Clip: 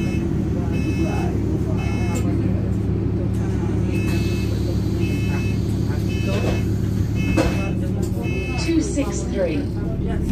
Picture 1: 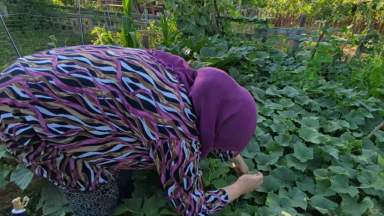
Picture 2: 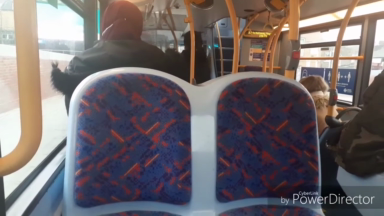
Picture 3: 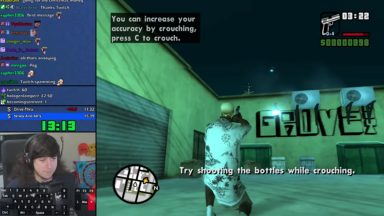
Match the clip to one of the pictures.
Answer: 2